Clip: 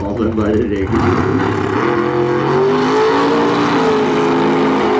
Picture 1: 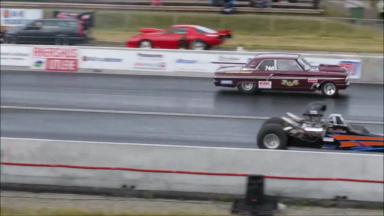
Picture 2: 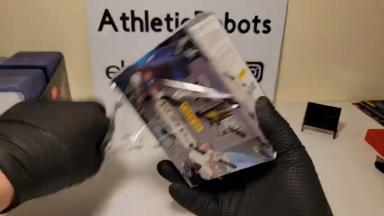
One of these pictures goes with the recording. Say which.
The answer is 1